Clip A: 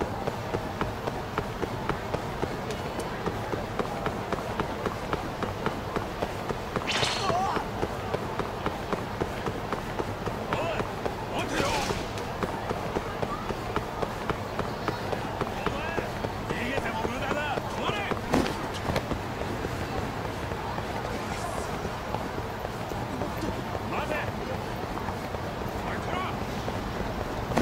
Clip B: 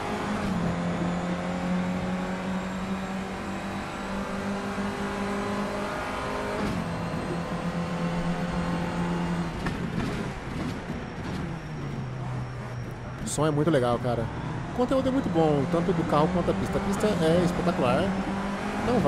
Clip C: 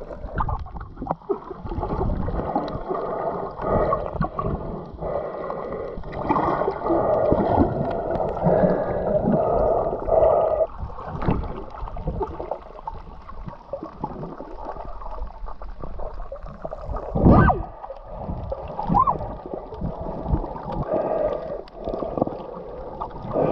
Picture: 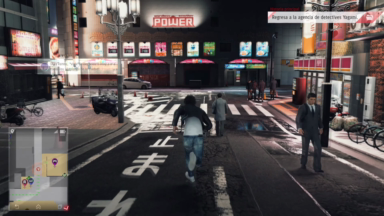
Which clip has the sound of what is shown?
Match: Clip A